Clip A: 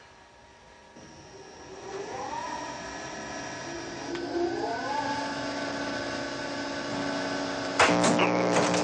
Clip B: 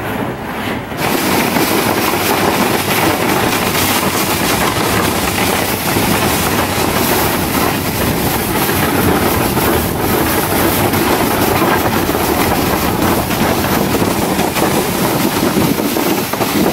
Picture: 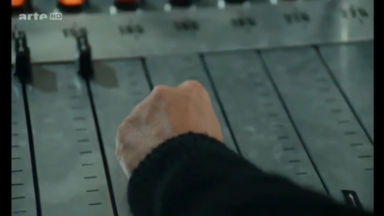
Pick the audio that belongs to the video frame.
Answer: A